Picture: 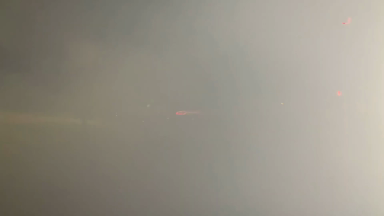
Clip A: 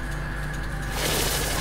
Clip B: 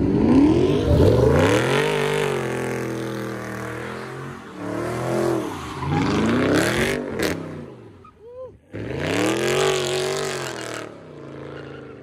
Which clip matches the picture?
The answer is B